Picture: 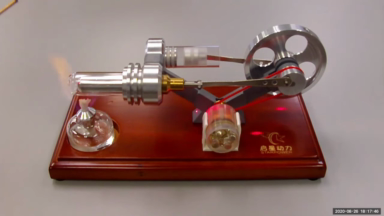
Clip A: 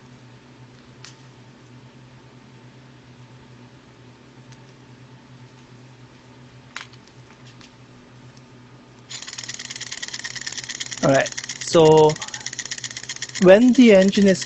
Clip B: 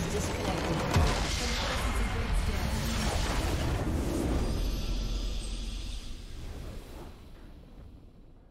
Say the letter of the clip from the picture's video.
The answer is A